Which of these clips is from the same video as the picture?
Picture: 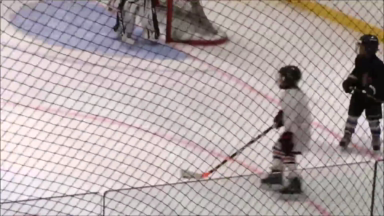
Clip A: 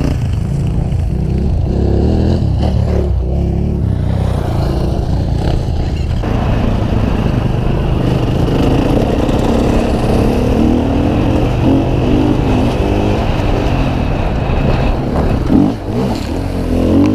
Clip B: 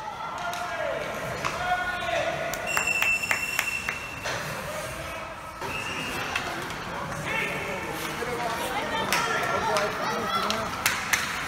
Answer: B